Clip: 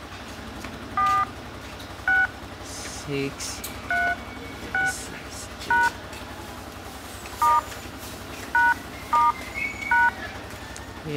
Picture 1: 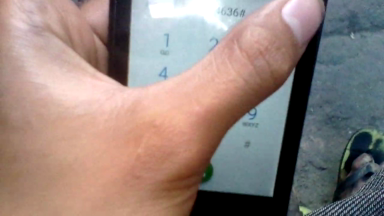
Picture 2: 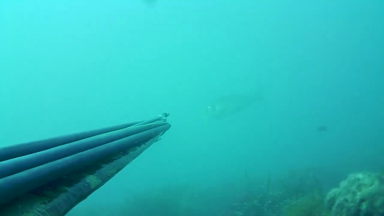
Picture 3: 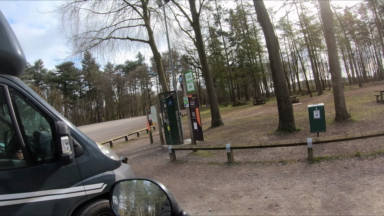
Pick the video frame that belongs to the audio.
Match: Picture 1